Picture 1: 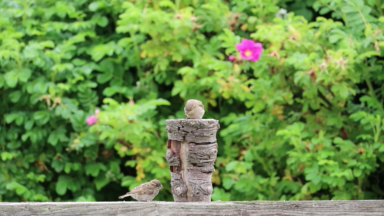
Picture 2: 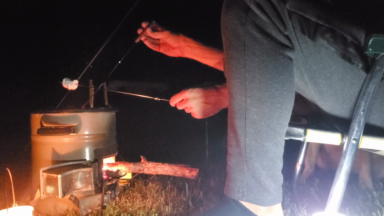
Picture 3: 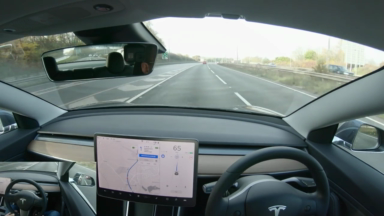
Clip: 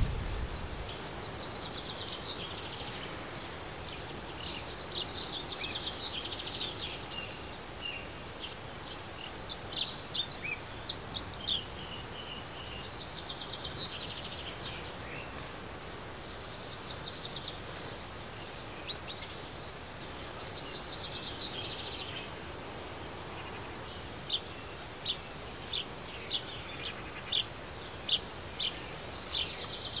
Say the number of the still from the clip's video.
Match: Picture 1